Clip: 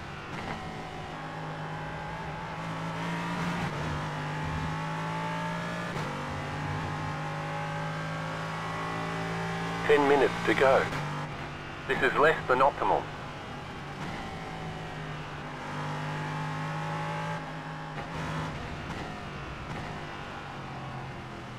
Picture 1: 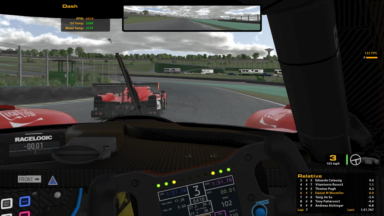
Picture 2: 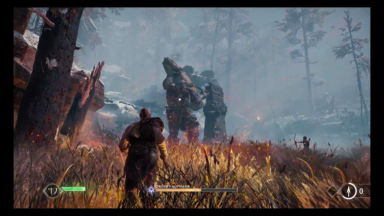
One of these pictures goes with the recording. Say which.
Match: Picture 1